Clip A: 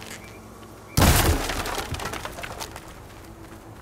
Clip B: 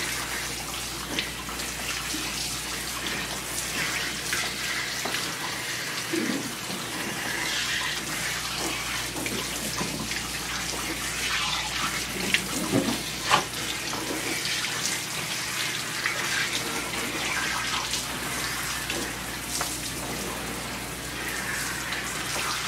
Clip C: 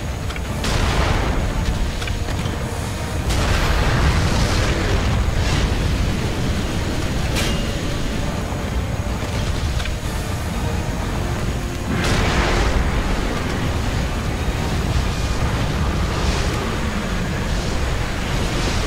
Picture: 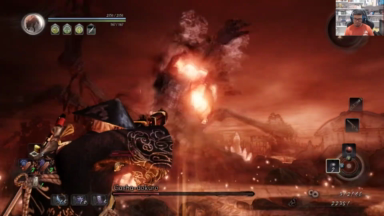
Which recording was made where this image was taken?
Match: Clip C